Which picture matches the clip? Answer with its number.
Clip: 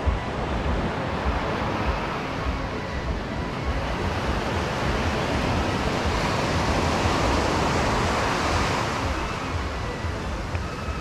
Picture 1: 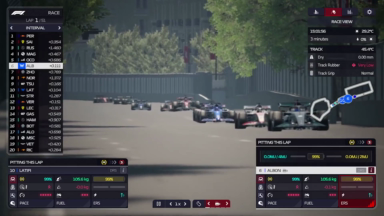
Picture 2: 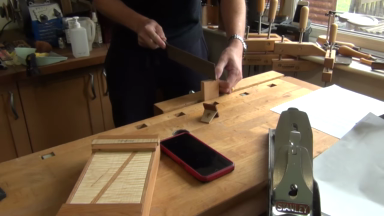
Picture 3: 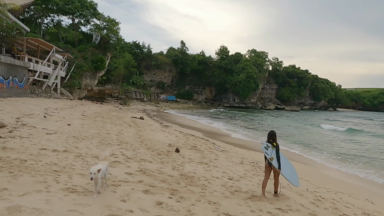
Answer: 3